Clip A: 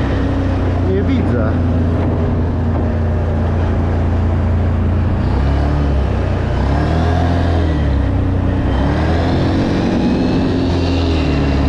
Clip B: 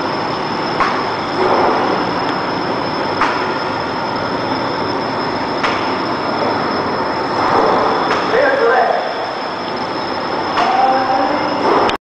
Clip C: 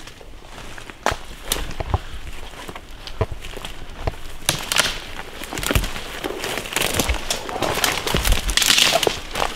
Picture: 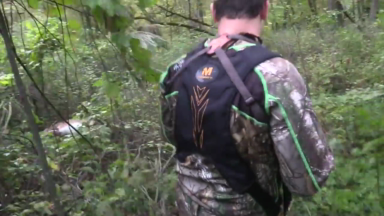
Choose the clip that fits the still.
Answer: C